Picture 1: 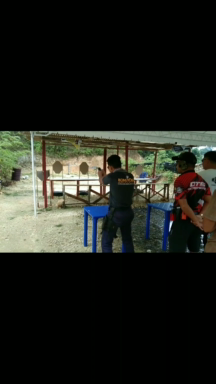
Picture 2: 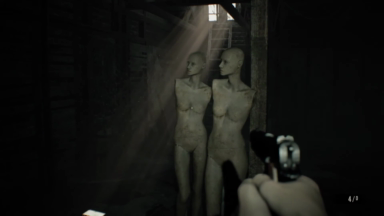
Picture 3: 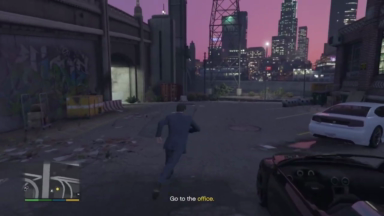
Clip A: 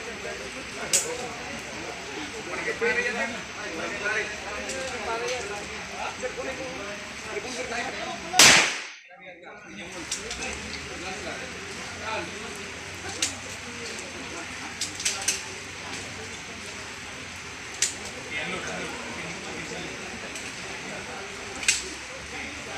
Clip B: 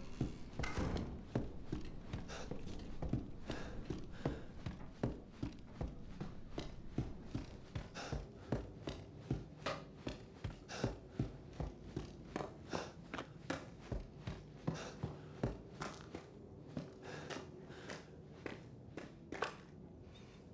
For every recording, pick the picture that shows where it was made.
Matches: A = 1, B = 2